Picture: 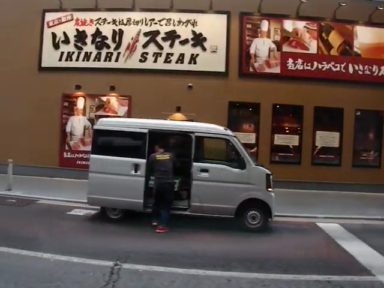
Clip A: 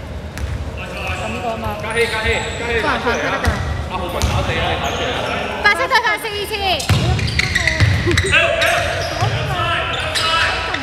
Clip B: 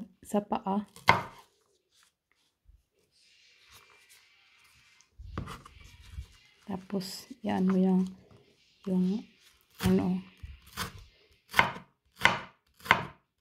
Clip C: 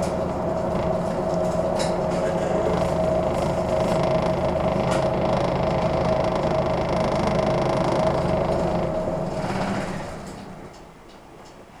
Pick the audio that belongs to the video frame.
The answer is C